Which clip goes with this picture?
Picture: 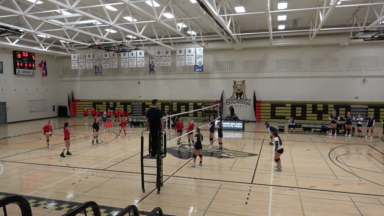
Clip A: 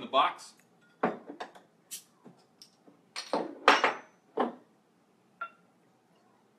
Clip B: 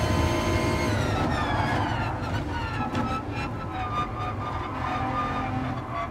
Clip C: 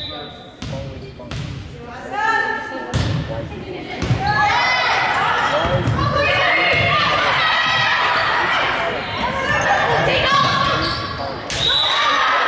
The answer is C